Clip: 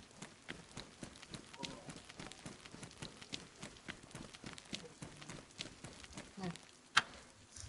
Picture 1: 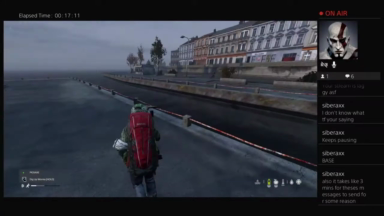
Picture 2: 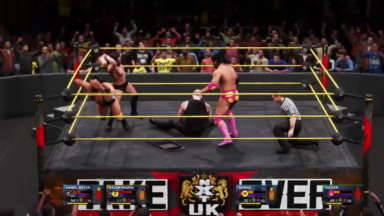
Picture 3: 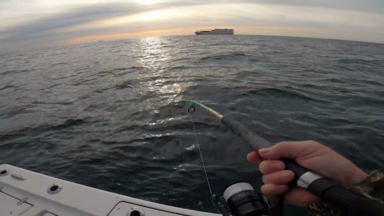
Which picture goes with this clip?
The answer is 1